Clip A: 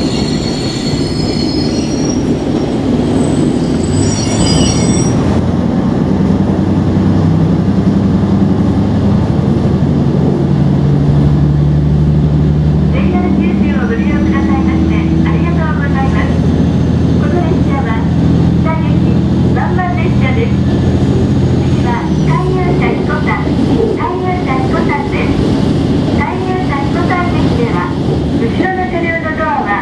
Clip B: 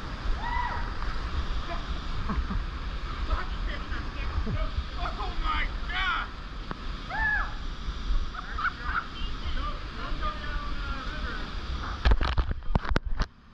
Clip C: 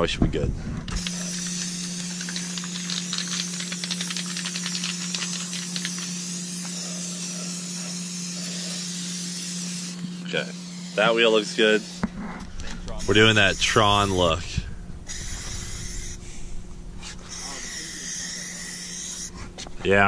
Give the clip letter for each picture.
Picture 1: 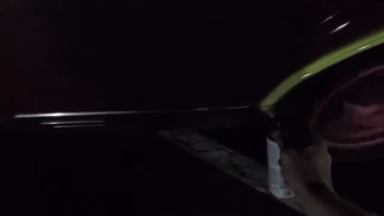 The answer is C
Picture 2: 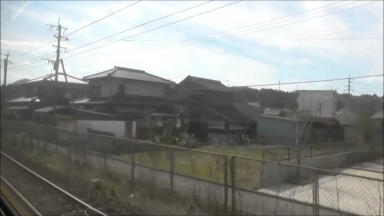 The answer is A